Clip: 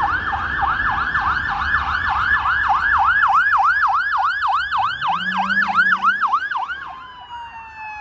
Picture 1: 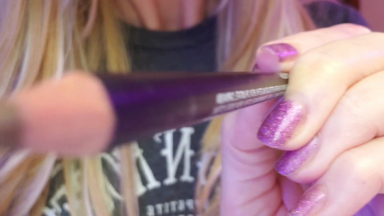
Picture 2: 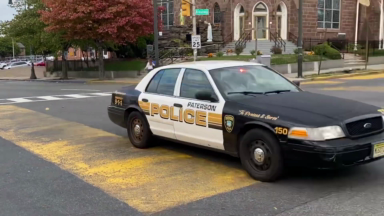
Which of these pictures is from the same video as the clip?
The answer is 2